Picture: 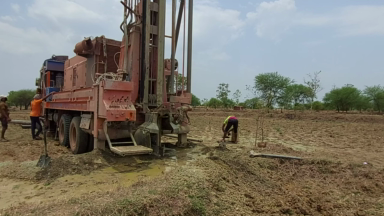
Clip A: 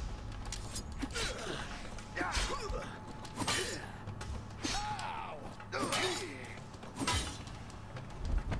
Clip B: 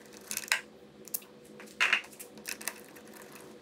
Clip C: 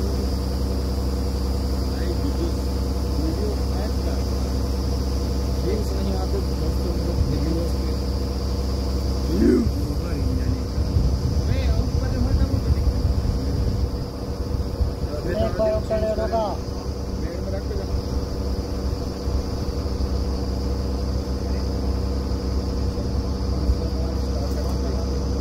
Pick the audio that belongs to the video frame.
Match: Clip C